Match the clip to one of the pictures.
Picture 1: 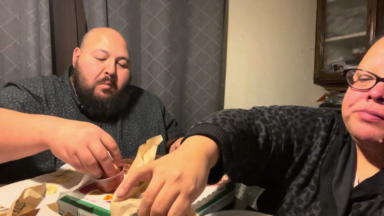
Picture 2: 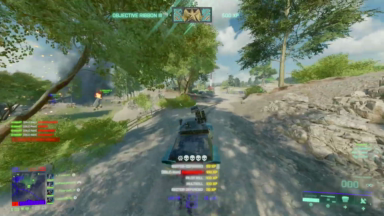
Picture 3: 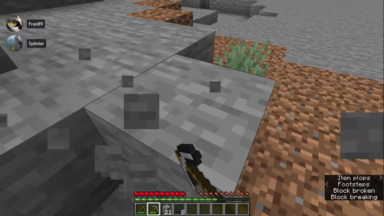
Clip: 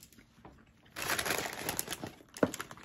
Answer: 1